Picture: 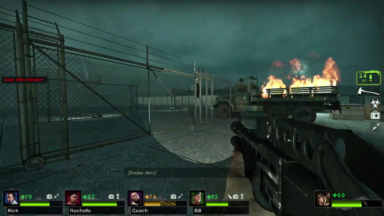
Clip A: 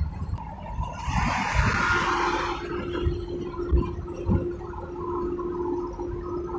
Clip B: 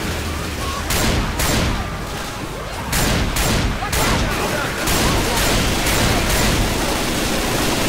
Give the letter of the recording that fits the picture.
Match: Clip B